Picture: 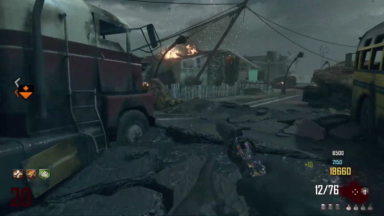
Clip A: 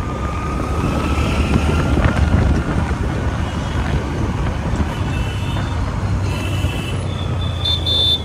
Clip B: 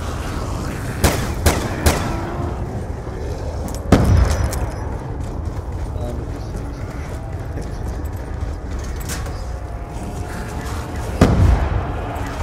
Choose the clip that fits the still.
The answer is B